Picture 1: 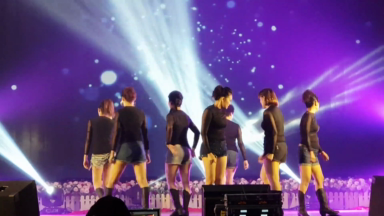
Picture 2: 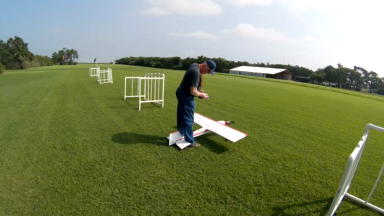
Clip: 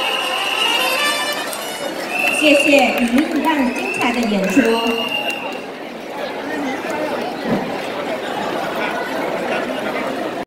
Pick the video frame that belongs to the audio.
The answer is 1